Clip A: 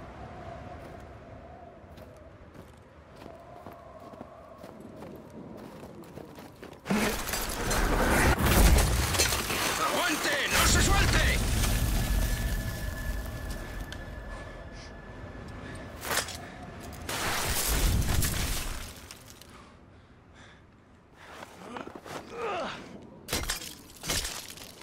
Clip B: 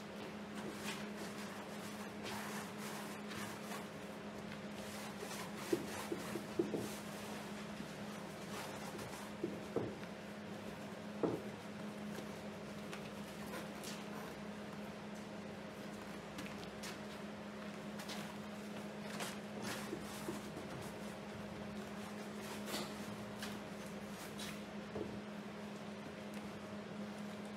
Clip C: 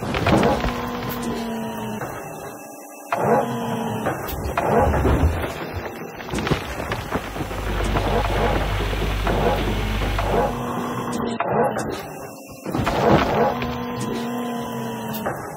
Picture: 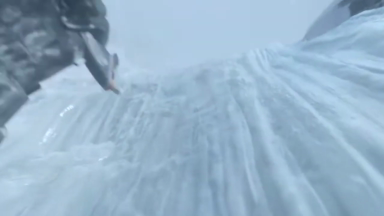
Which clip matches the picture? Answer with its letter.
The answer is A